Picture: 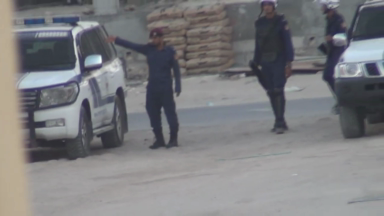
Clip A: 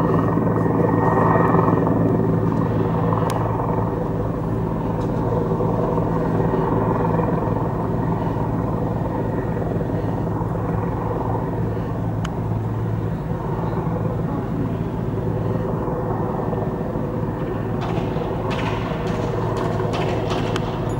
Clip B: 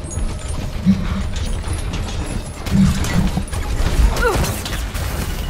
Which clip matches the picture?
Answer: A